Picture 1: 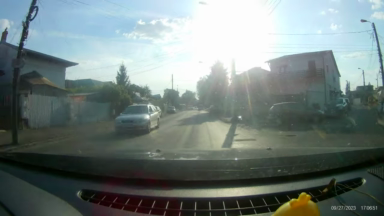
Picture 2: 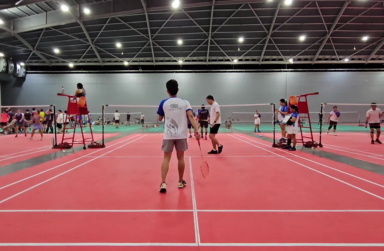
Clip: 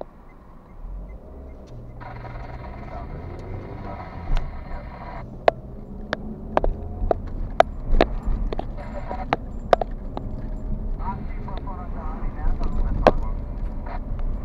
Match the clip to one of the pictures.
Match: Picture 1